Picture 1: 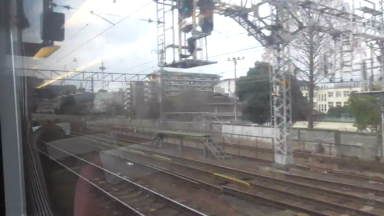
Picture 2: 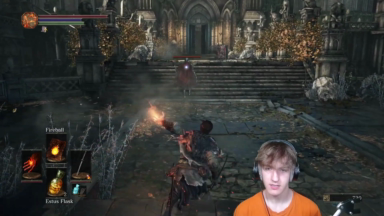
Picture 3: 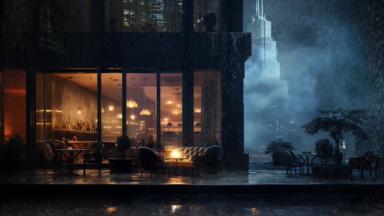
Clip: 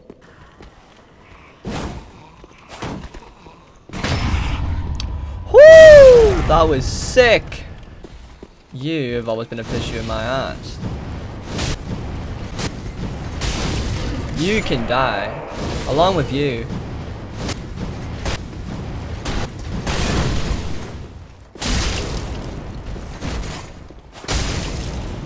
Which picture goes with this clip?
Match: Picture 2